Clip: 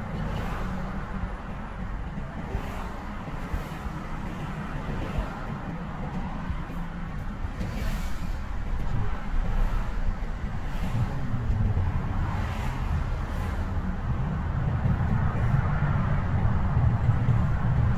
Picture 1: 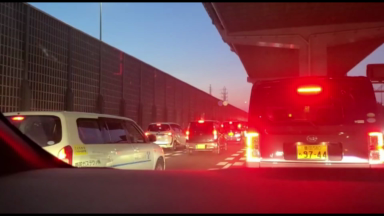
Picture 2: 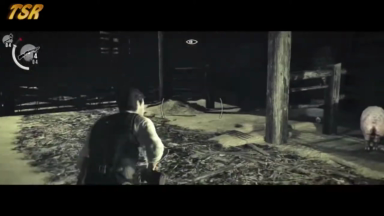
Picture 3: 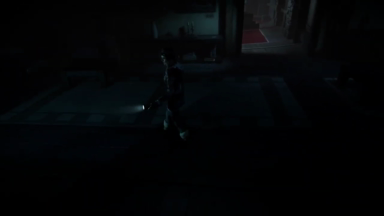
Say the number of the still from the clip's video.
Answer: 1